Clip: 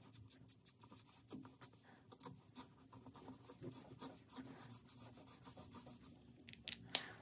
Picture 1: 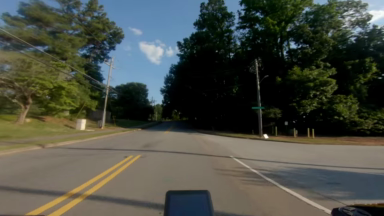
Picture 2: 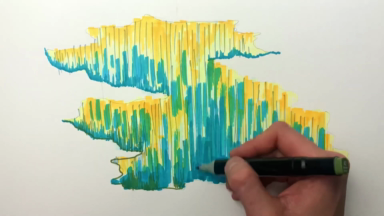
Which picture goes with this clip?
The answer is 2